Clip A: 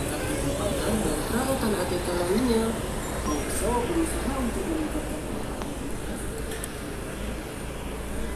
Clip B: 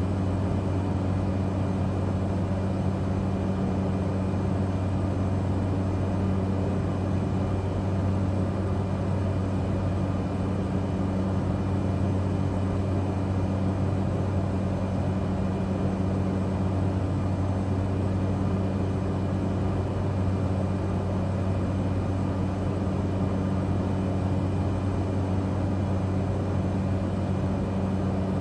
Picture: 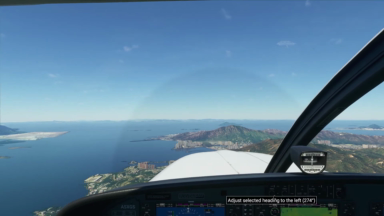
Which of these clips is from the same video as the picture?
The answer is B